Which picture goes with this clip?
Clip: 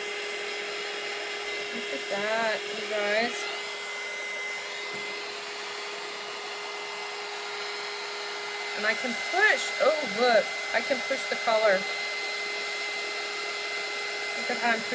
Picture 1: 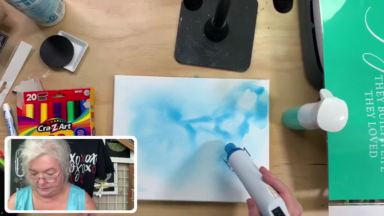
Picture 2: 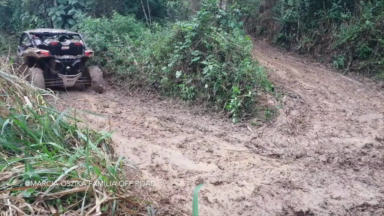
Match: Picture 1